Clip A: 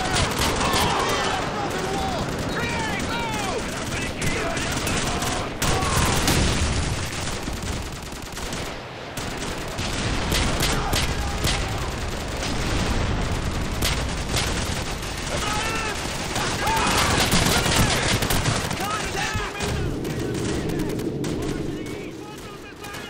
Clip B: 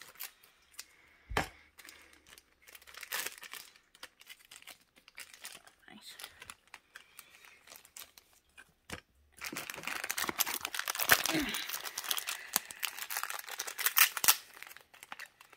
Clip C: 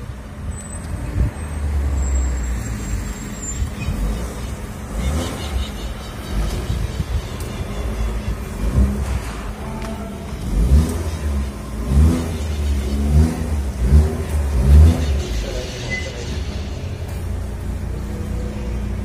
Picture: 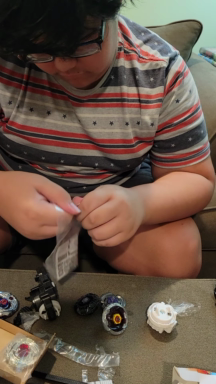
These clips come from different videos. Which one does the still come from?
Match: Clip B